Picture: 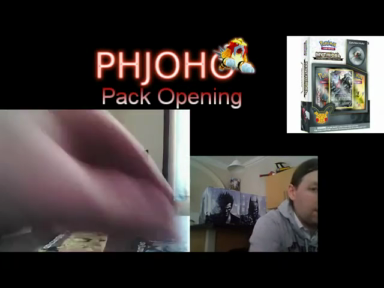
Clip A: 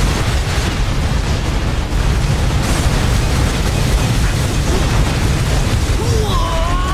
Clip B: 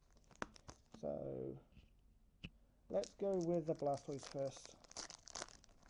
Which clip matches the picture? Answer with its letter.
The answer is B